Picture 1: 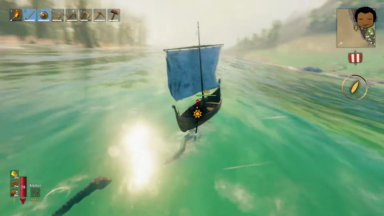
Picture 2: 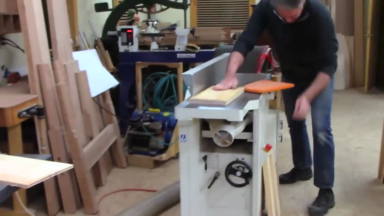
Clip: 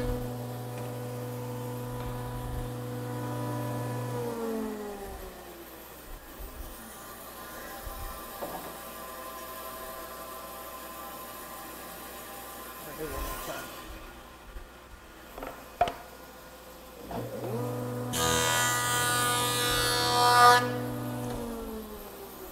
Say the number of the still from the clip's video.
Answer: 2